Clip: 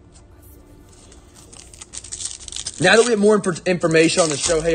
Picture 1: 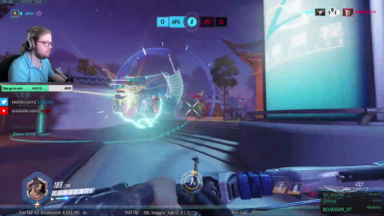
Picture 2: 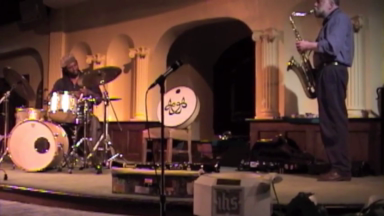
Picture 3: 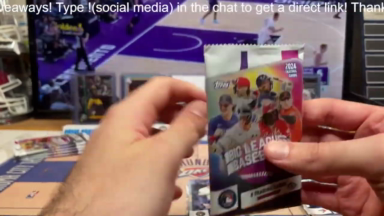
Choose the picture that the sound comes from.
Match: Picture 3